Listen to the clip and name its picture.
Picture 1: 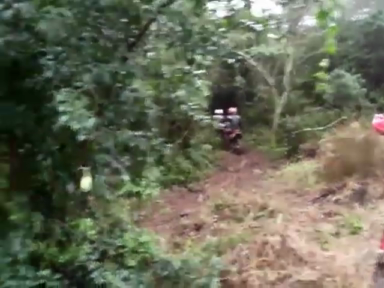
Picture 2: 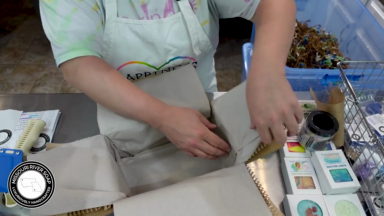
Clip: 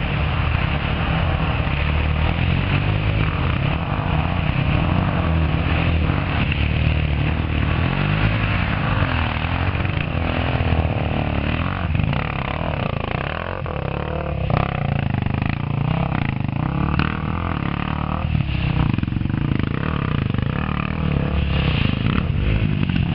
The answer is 1